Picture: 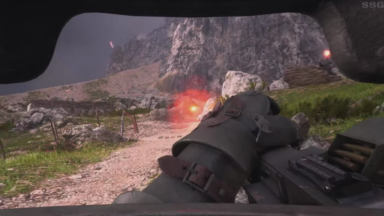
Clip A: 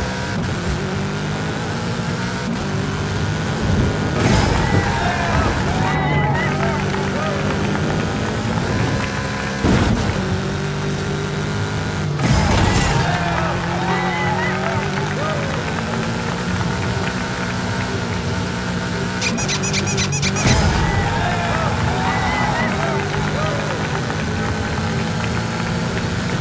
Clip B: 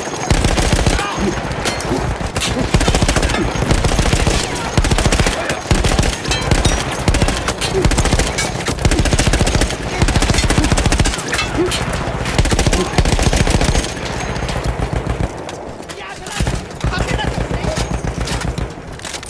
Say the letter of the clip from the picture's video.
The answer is B